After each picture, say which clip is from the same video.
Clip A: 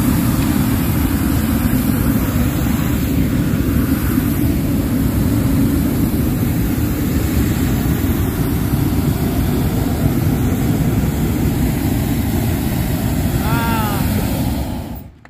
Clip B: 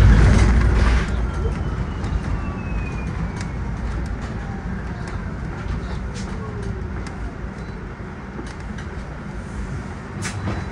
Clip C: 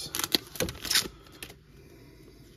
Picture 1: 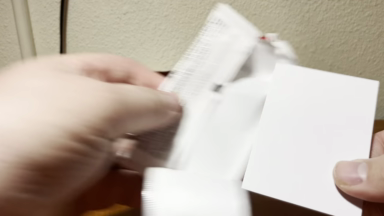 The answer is C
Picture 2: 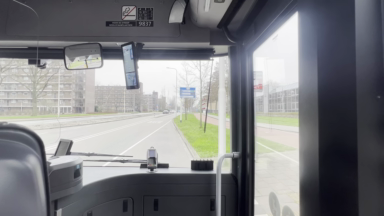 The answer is B